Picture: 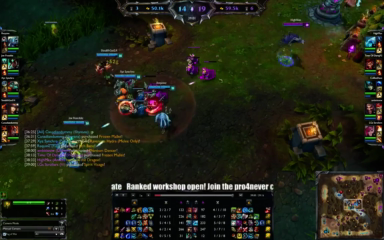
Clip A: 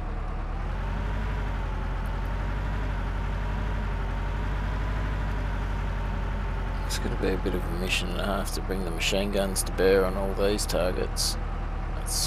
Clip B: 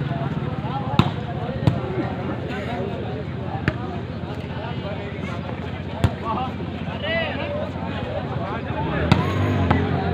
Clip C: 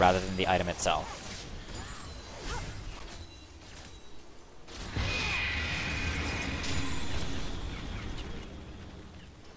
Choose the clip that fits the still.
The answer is C